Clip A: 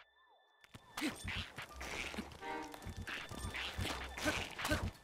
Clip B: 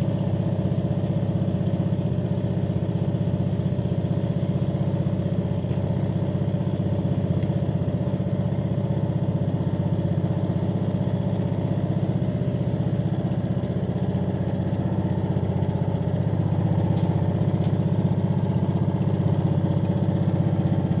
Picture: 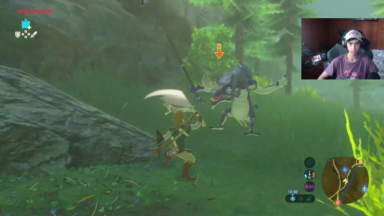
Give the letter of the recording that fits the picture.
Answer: A